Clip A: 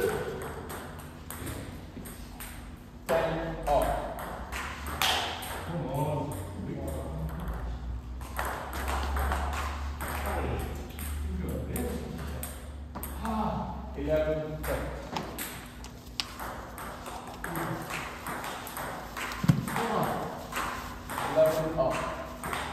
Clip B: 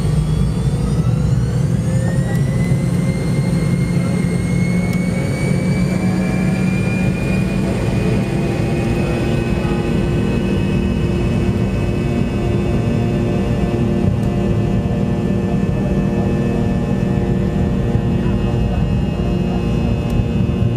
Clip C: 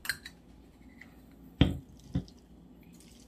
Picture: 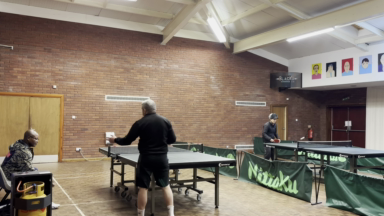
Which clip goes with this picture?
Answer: A